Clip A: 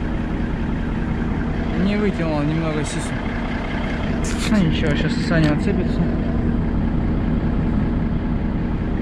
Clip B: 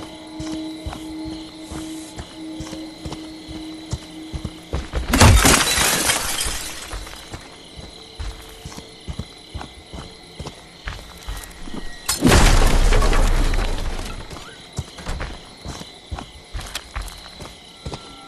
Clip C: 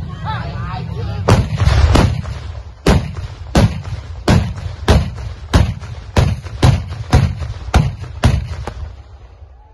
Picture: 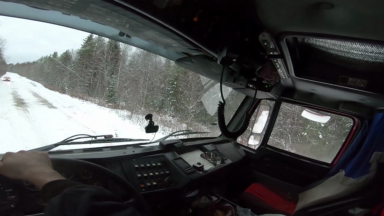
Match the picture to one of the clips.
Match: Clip A